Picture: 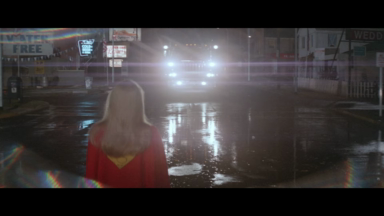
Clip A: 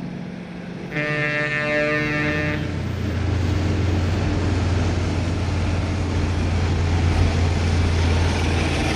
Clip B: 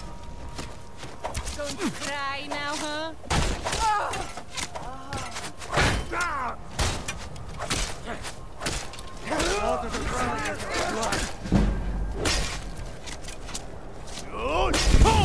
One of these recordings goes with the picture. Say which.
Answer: A